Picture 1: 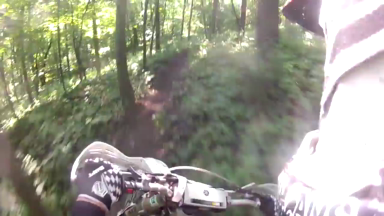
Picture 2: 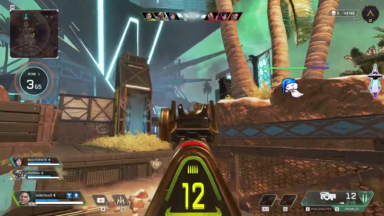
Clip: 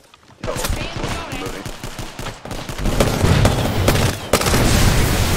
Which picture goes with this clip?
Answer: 2